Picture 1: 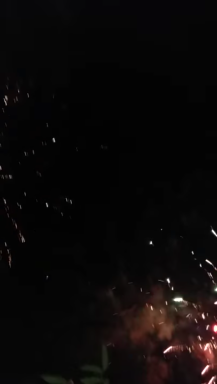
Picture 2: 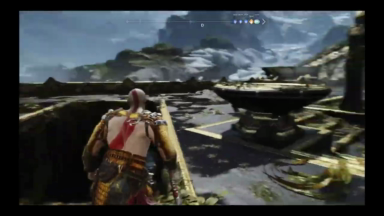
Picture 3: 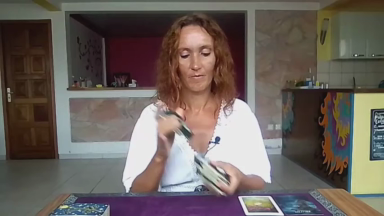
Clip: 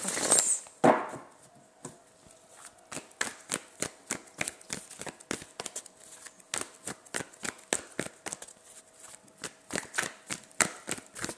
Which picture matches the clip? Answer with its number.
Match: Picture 3